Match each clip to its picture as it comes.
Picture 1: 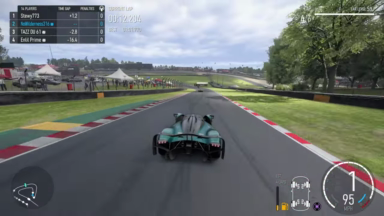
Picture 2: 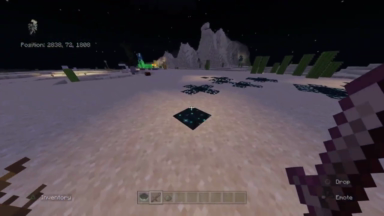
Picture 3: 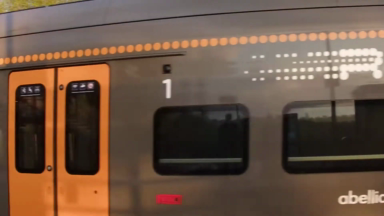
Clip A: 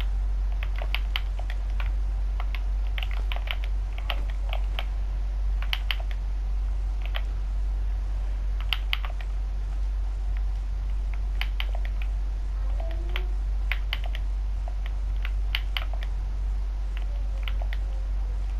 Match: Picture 2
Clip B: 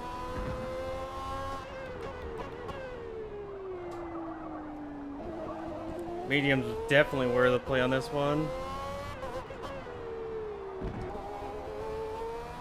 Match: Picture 1